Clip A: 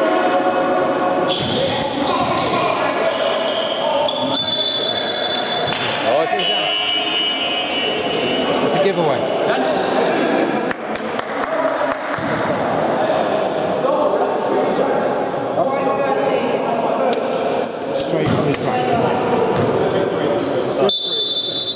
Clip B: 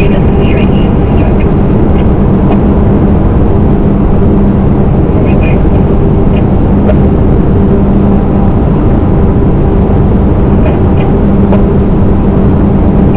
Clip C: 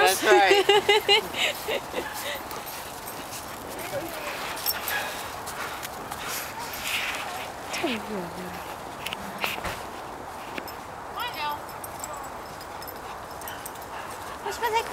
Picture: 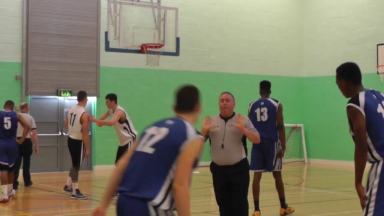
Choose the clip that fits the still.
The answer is A